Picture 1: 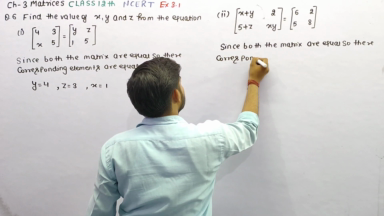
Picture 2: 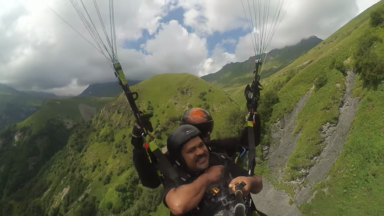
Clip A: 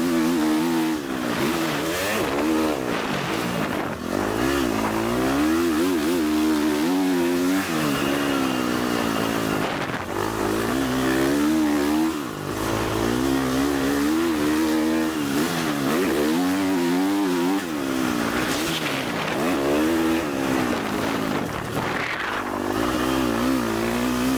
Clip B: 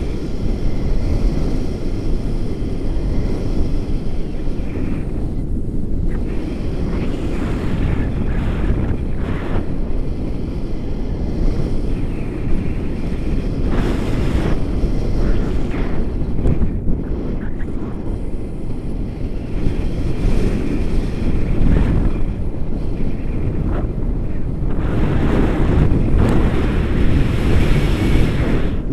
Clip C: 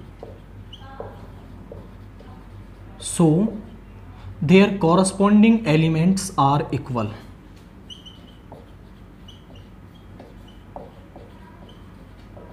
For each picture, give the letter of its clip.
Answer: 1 C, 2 B